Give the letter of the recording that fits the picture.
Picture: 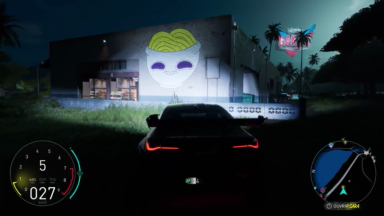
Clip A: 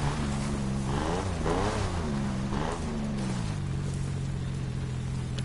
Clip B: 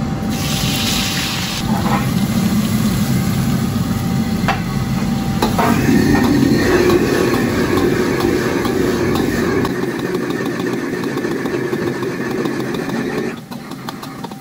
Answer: A